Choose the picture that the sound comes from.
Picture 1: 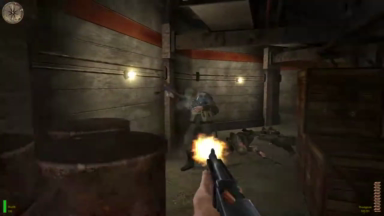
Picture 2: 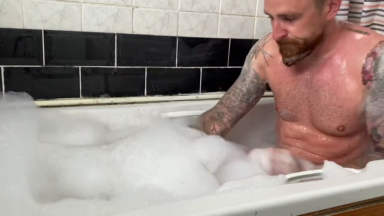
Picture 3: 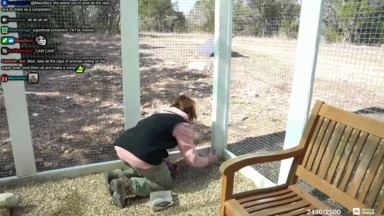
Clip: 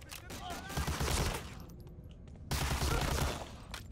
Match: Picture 1